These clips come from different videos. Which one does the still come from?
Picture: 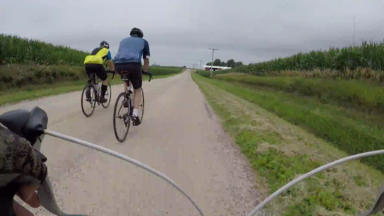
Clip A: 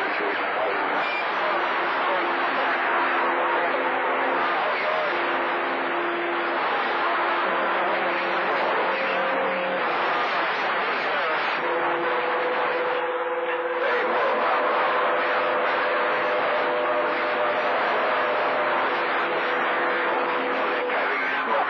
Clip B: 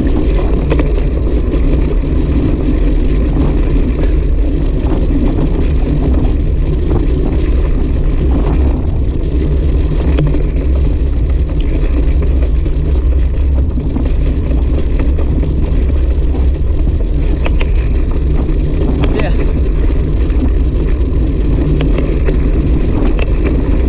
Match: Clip B